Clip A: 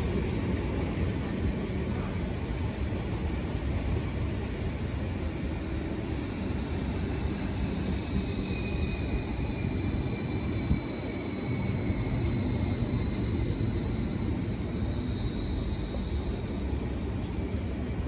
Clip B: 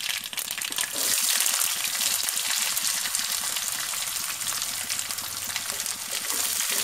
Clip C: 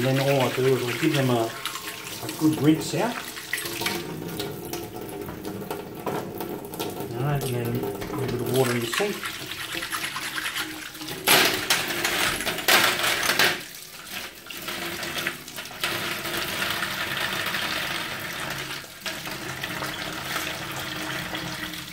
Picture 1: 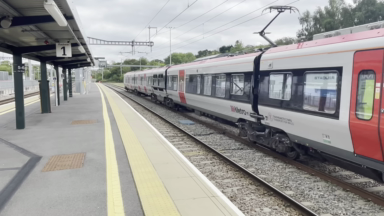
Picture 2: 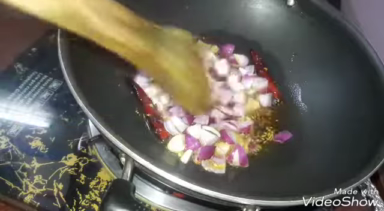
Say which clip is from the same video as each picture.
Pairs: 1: A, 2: B